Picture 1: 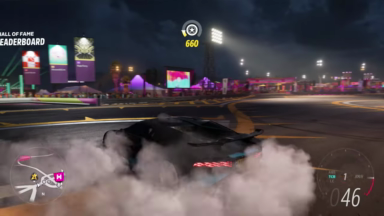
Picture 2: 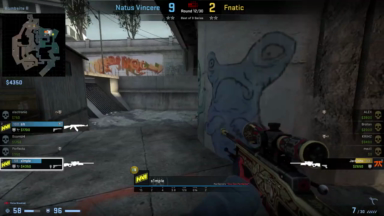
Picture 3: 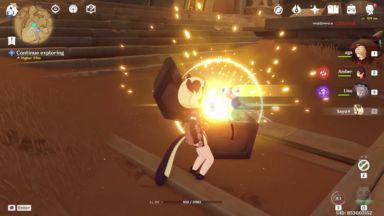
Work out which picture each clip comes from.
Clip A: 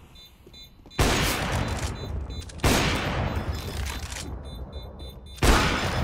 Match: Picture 2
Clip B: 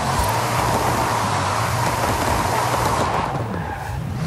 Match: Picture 1